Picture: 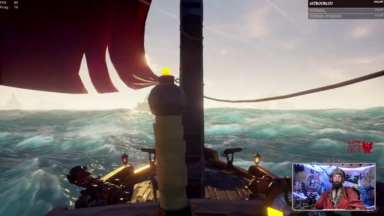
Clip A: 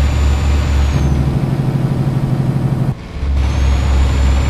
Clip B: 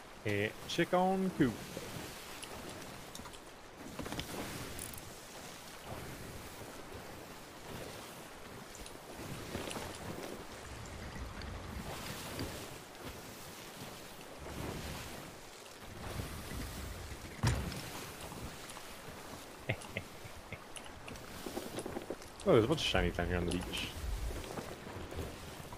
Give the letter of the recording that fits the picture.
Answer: B